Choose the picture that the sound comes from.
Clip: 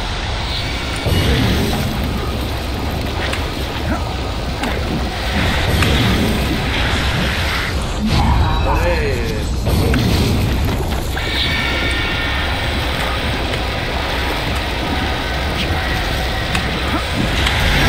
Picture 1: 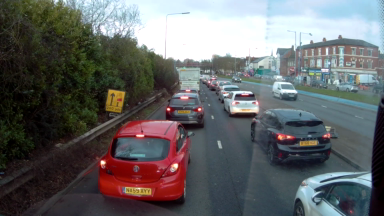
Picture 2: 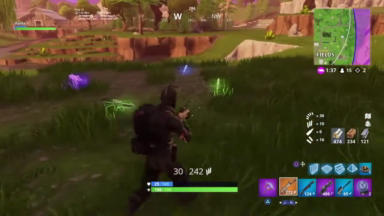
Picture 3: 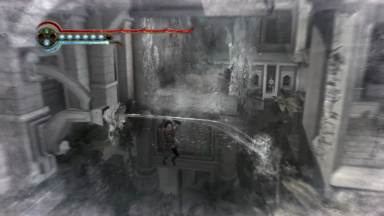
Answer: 3